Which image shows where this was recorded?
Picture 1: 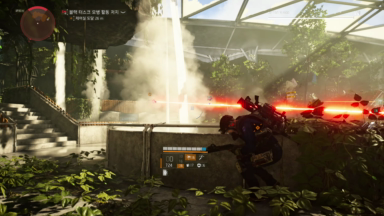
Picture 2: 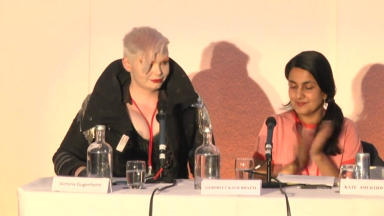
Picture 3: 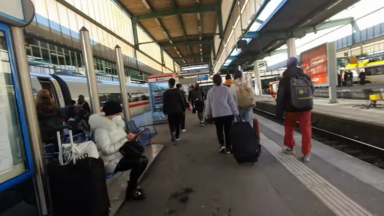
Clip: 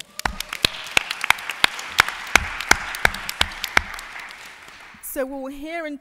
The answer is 2